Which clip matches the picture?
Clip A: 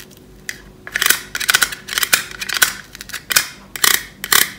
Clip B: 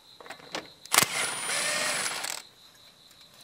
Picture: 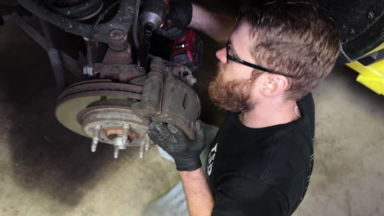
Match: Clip B